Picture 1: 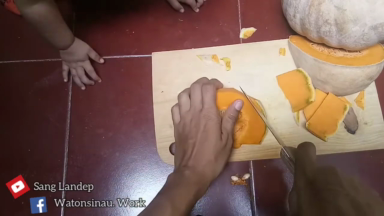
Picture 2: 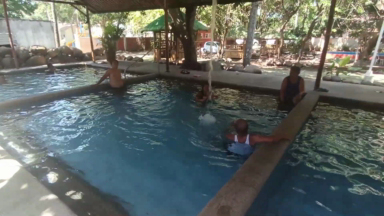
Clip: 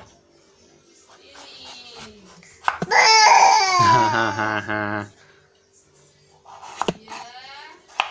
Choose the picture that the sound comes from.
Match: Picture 1